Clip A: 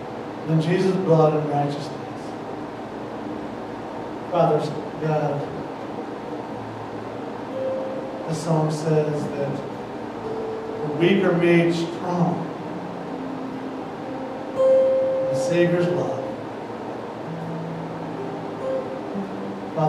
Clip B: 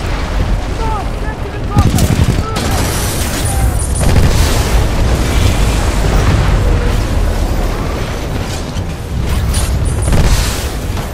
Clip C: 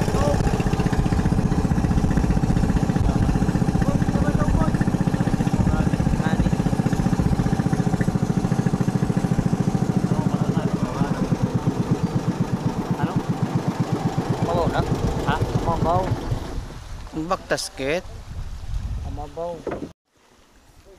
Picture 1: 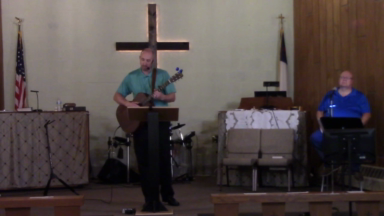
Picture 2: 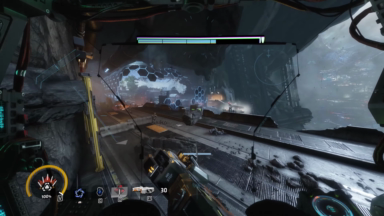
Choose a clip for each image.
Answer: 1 A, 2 B